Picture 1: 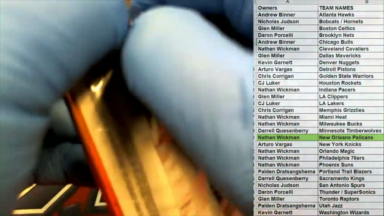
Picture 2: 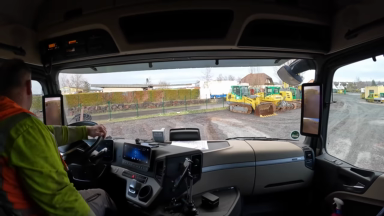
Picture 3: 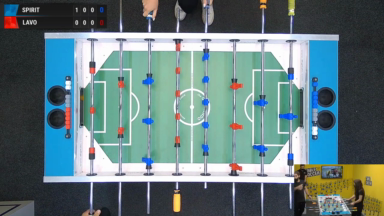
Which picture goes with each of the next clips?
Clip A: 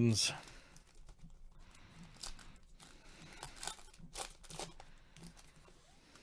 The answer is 1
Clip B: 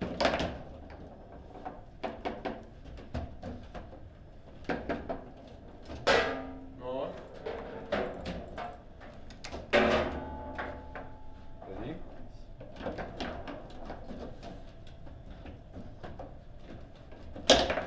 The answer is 3